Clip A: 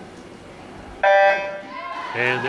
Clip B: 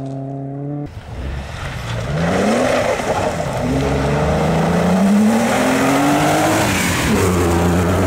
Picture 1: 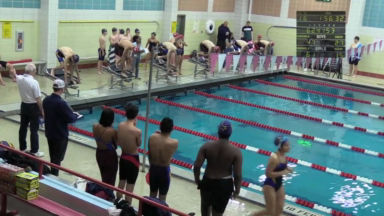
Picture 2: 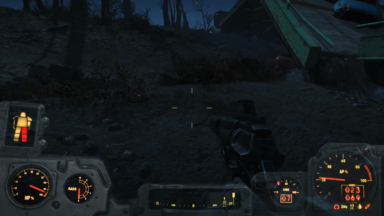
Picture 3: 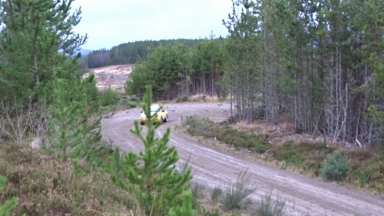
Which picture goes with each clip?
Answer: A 1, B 3